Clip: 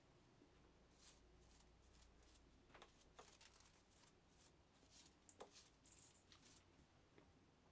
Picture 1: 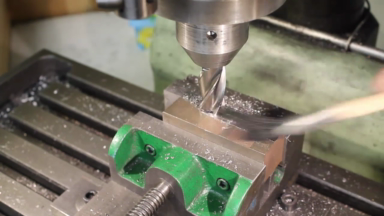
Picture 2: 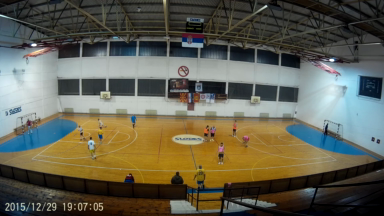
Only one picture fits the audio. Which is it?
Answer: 1